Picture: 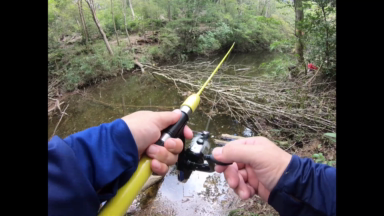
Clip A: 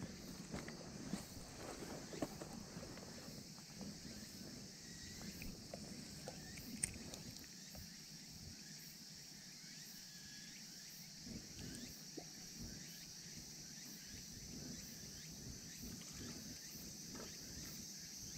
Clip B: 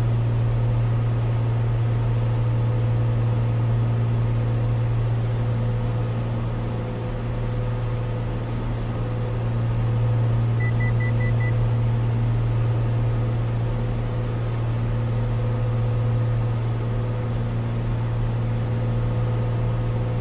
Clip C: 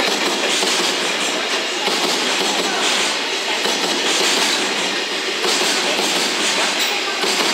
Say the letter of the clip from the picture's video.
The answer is A